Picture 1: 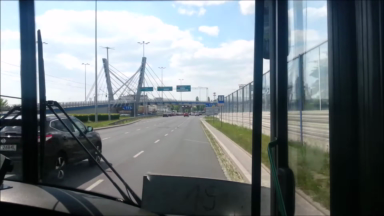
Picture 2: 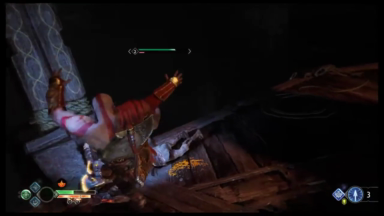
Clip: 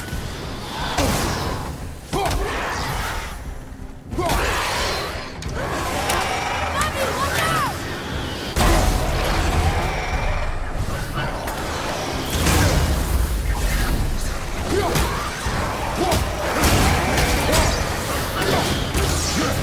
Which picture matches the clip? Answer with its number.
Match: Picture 2